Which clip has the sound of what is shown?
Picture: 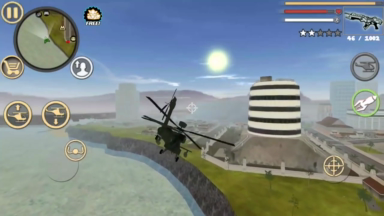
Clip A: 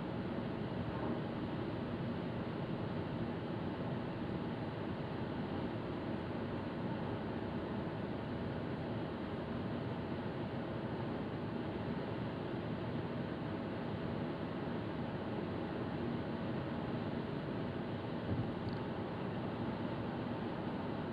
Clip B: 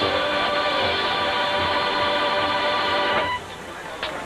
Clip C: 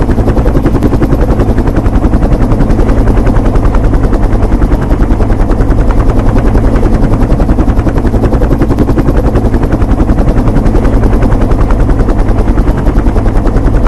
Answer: C